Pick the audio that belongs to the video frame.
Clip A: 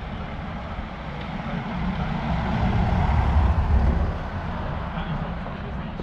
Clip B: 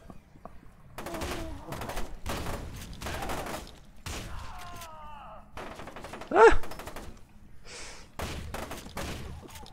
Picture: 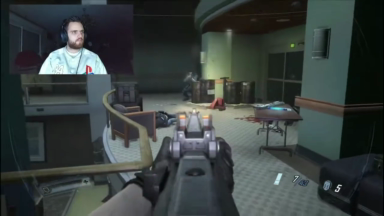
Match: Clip B